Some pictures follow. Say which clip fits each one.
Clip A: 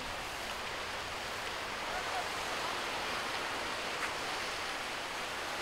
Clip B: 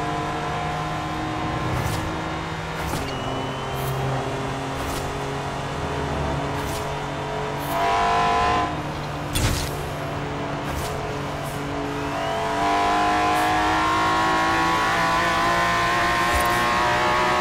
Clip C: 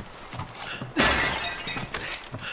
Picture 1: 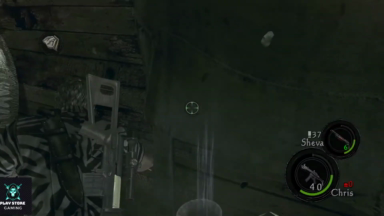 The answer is C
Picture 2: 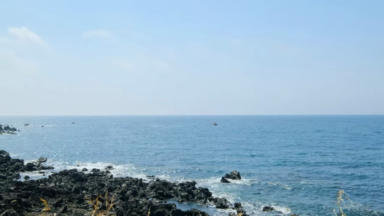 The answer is A